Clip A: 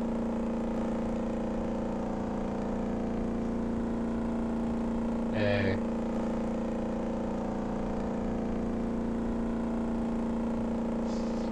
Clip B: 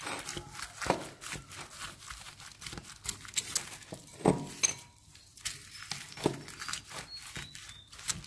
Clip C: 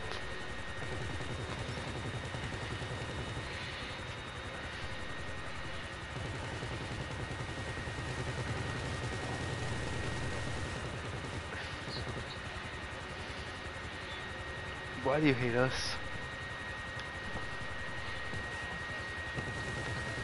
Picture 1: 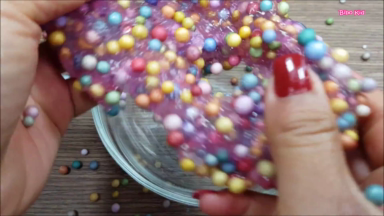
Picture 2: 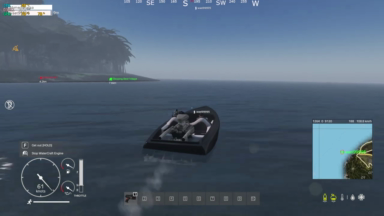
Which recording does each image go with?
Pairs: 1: B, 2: A